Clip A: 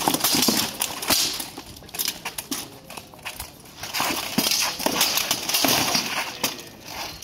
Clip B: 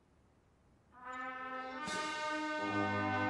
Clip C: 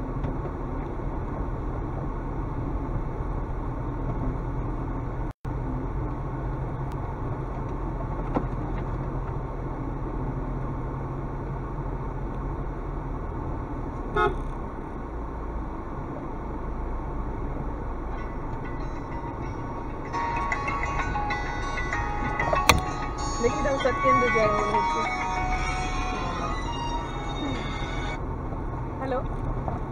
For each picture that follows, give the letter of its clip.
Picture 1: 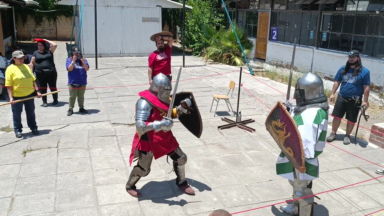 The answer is A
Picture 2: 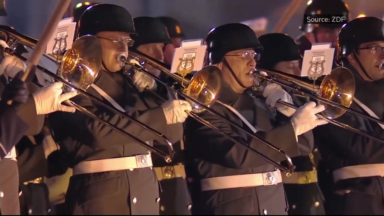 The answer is B